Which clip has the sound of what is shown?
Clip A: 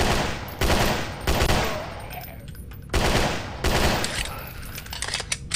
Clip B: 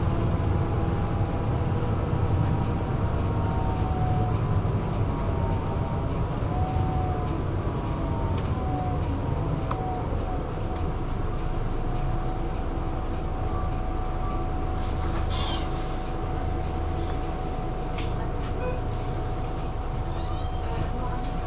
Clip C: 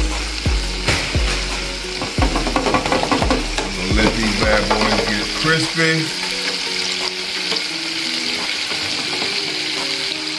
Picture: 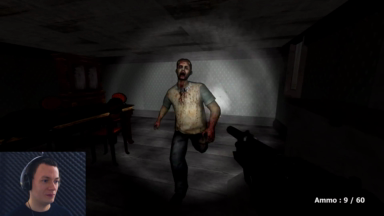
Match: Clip A